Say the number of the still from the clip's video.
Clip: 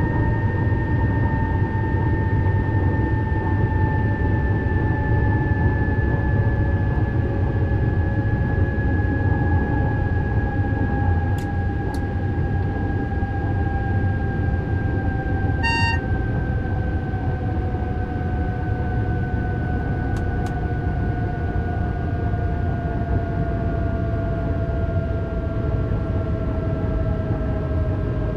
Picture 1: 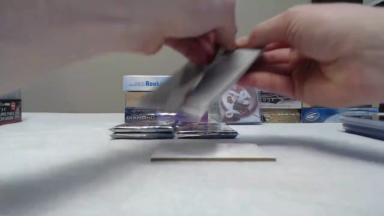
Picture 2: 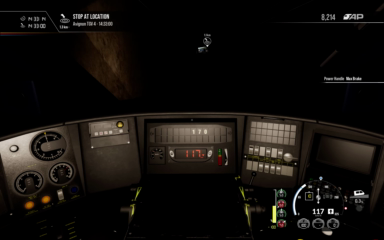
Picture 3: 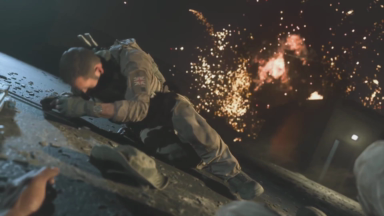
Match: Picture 2